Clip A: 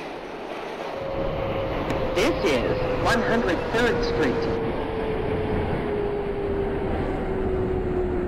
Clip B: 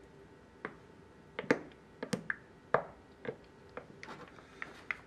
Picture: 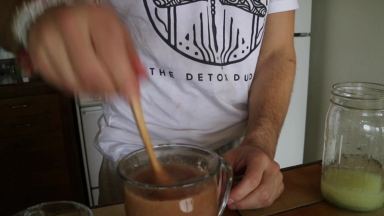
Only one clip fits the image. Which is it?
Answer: B